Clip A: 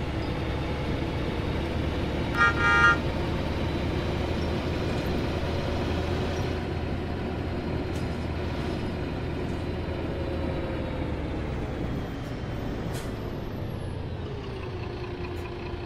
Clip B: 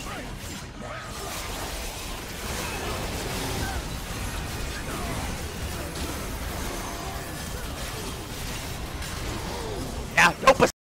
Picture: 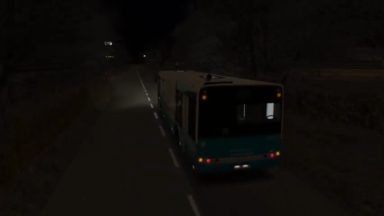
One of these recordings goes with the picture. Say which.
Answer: A